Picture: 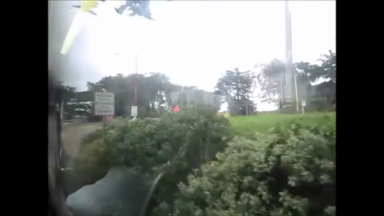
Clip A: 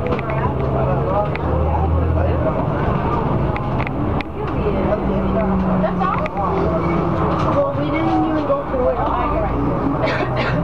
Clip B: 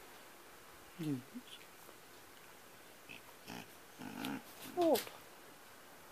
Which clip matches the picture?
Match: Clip A